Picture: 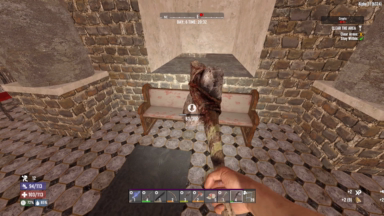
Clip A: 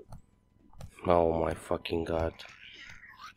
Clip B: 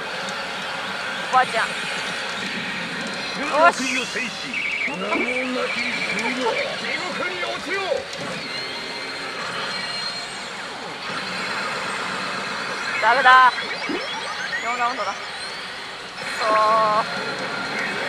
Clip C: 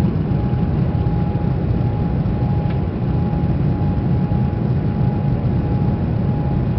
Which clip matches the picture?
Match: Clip A